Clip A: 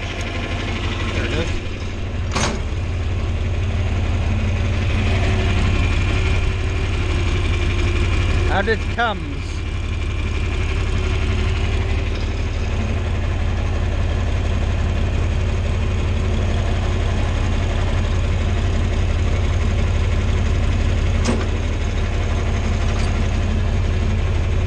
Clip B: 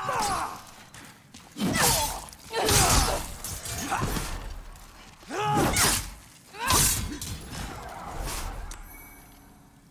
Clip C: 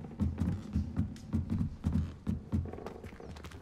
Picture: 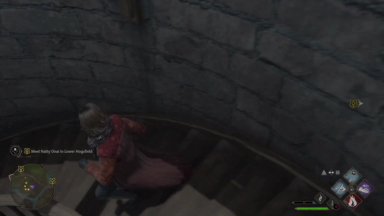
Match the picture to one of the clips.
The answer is C